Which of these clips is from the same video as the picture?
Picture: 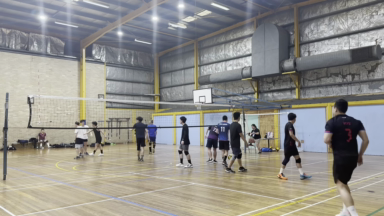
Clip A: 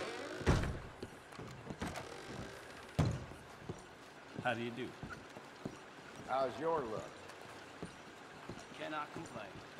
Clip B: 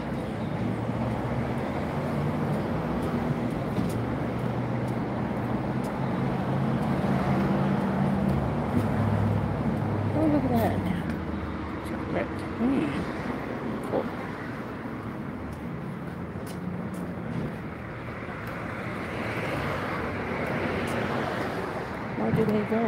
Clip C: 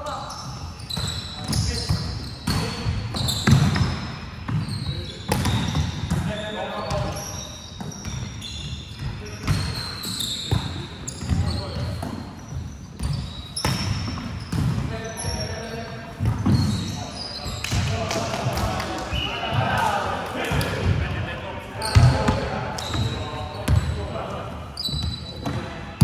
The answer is C